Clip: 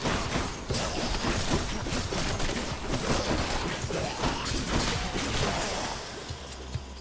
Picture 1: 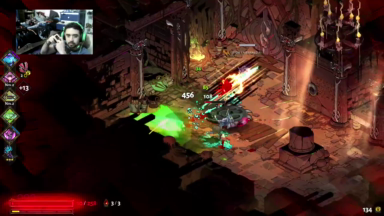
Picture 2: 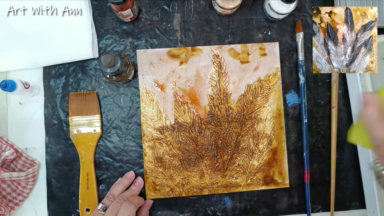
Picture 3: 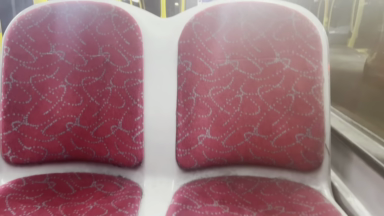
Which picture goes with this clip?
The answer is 1